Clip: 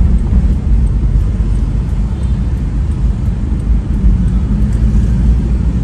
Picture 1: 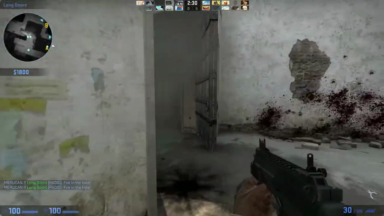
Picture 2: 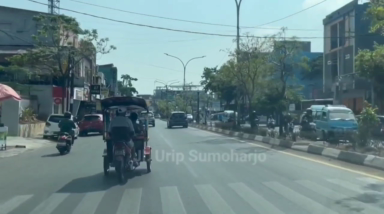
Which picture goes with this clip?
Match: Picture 2